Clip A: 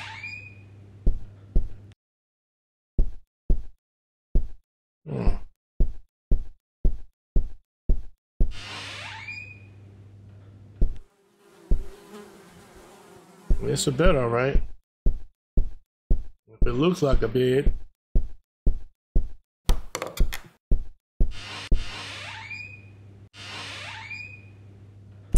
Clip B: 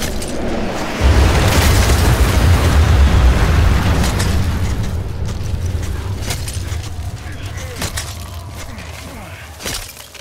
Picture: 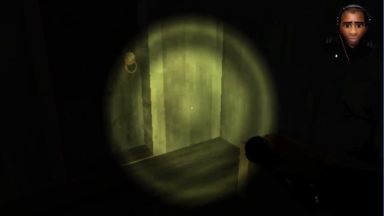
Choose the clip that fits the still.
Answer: A